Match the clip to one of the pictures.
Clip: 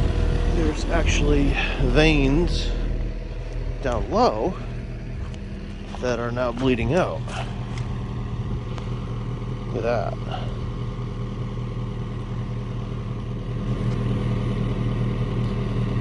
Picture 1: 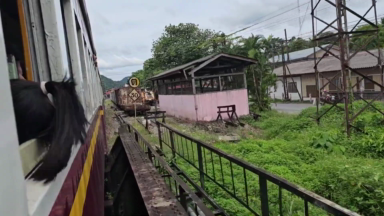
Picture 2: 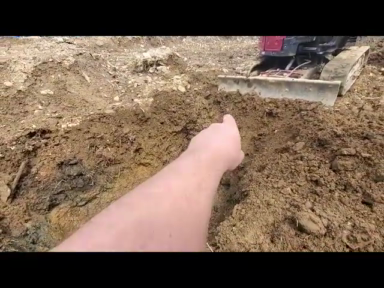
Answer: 2